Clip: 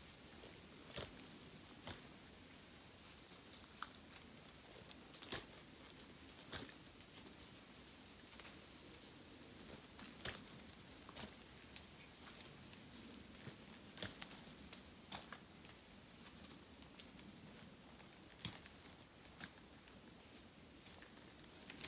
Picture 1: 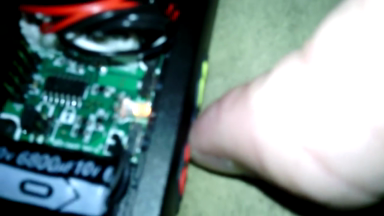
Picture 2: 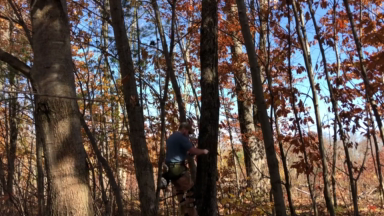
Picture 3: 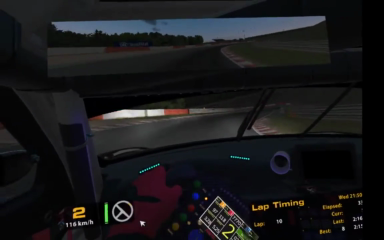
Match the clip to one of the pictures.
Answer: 2